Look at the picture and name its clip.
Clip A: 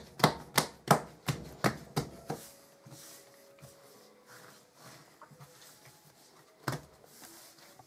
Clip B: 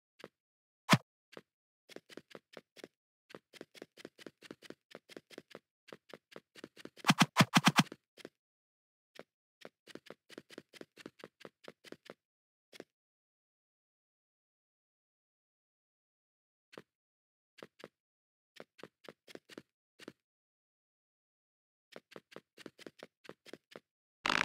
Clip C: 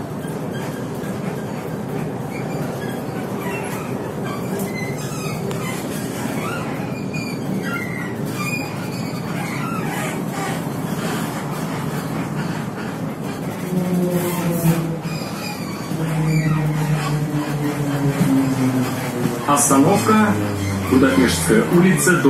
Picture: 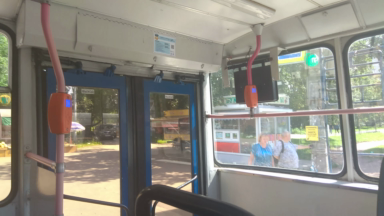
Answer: C